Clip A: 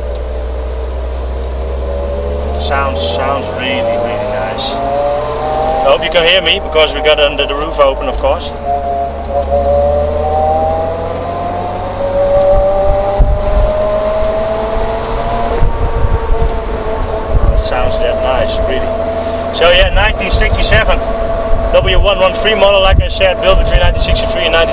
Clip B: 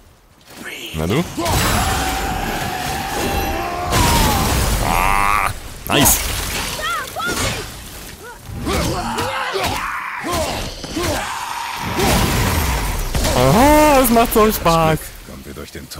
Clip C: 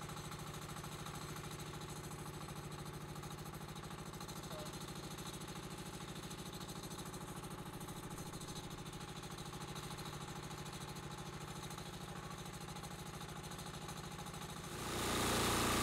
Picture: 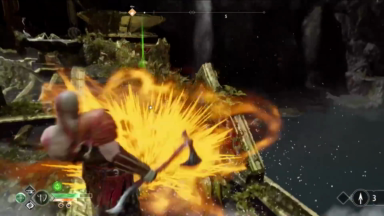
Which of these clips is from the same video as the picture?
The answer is B